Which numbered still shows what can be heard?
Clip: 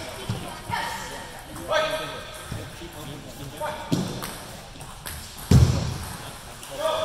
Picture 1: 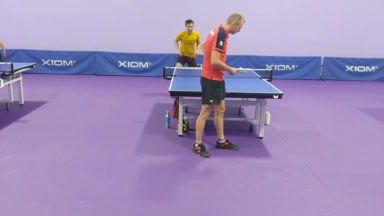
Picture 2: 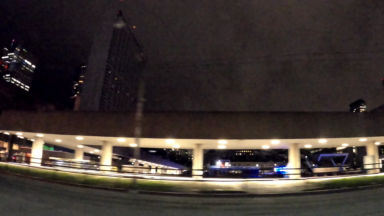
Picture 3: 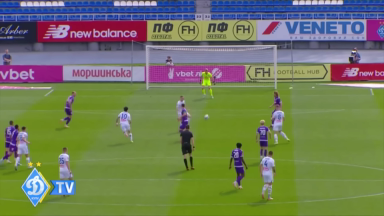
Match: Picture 1